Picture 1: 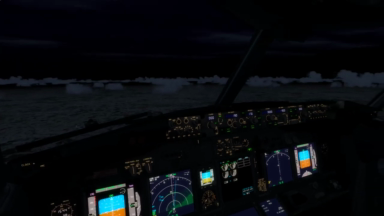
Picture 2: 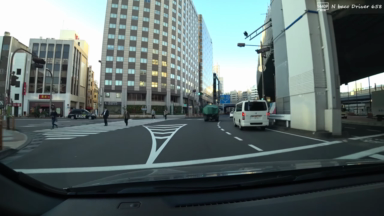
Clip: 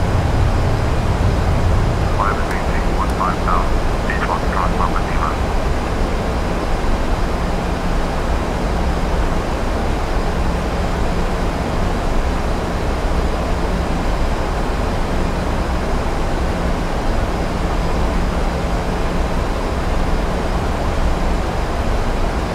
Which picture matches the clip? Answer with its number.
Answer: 1